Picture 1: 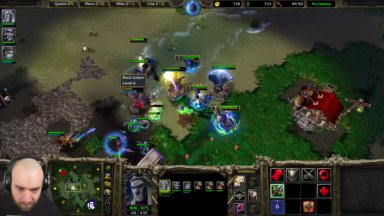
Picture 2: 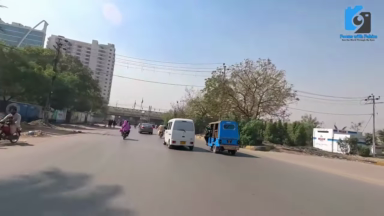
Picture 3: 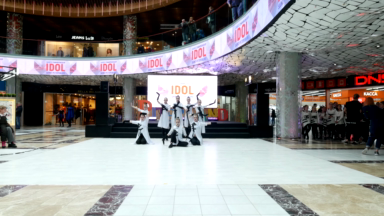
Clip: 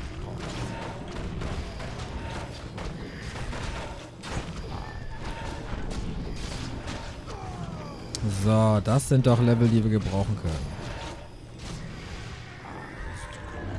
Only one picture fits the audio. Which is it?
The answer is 1